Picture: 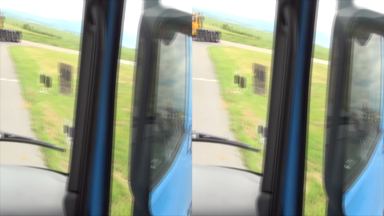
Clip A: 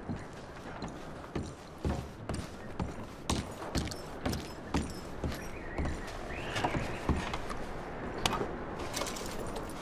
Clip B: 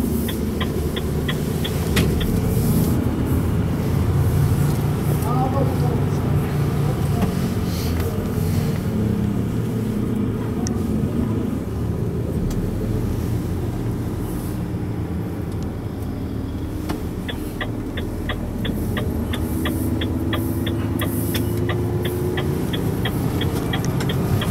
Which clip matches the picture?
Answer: B